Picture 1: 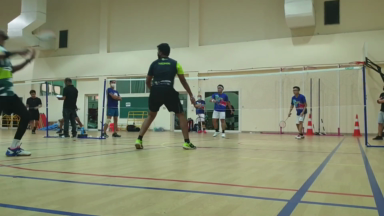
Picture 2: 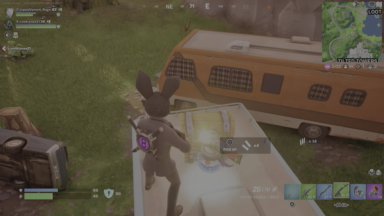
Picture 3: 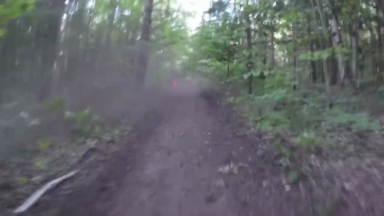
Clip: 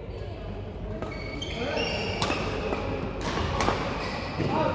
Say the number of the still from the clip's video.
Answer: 1